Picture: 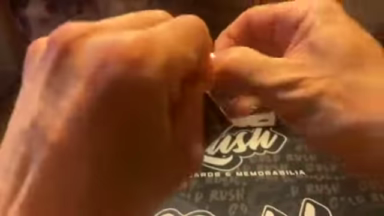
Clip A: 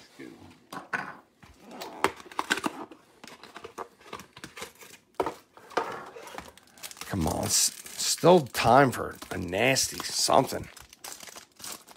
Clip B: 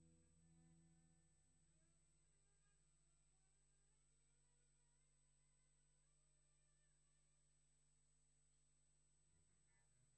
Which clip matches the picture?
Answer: A